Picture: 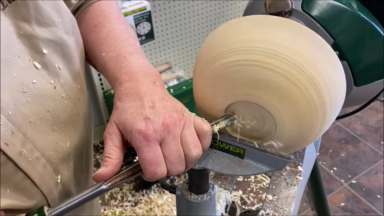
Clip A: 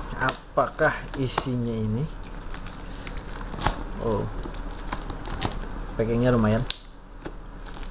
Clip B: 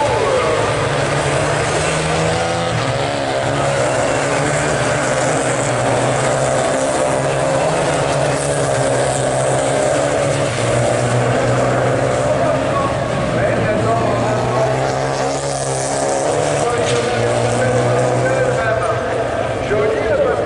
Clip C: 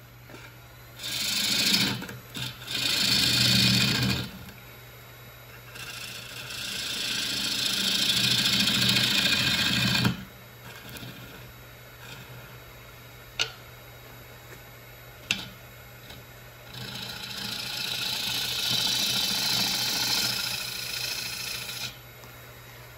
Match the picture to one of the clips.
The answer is C